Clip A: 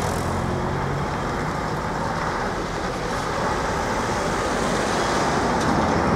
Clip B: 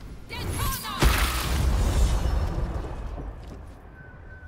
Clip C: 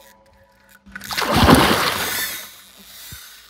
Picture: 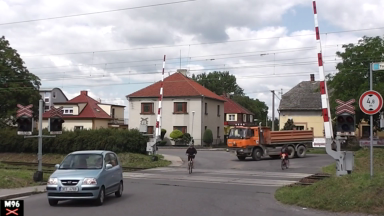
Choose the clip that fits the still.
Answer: A